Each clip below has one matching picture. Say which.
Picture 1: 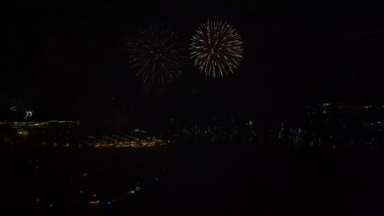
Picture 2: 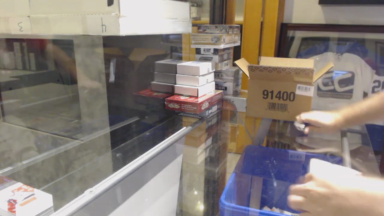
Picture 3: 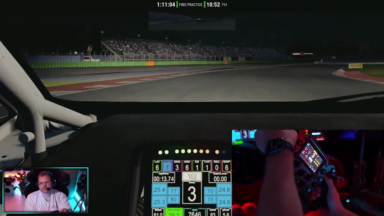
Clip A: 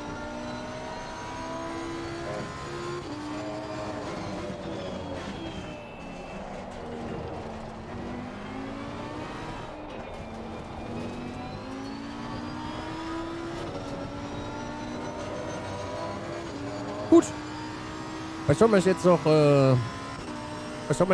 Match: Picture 3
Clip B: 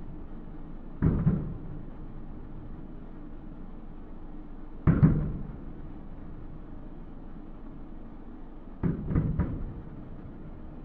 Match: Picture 1